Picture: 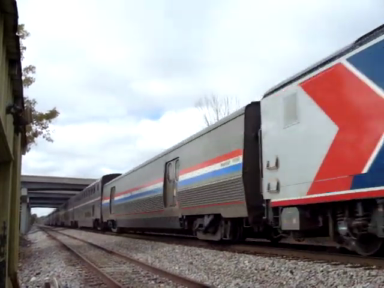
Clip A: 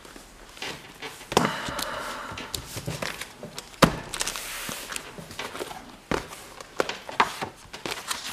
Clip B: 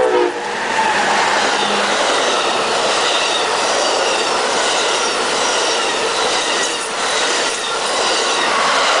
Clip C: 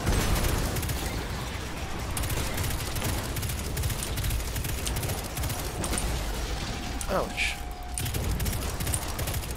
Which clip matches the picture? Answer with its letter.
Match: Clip B